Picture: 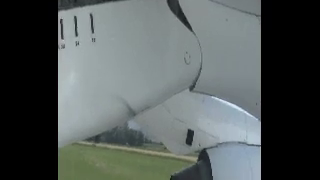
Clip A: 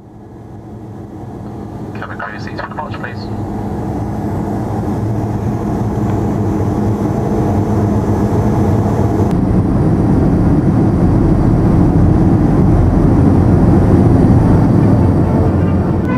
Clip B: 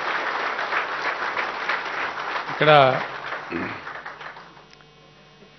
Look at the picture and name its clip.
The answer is A